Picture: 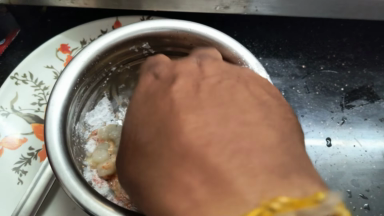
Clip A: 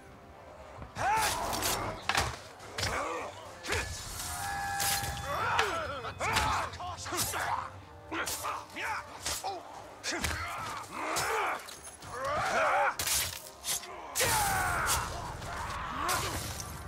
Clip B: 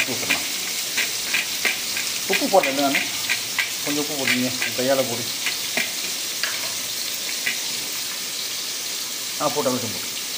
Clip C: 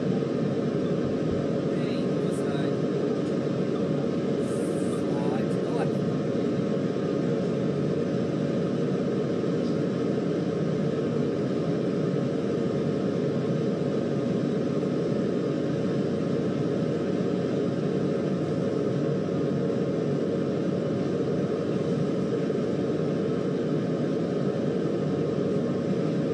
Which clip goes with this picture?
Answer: B